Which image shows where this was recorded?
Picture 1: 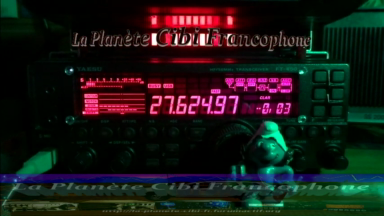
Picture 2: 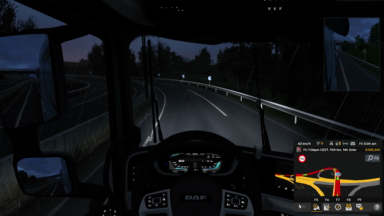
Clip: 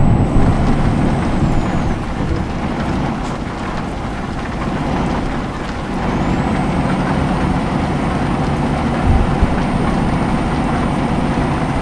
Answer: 2